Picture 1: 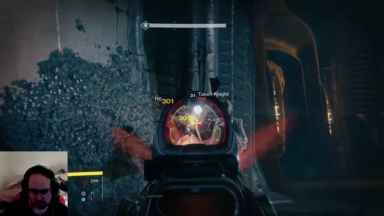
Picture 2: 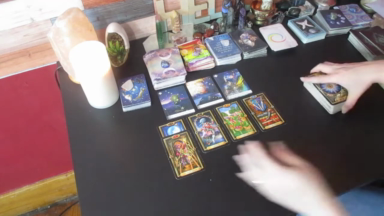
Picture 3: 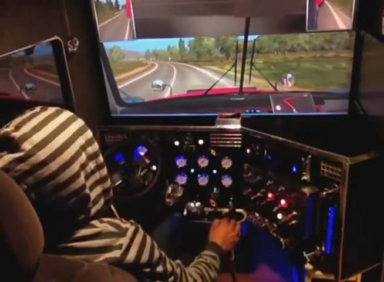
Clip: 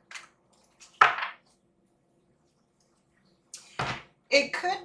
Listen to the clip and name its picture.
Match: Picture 2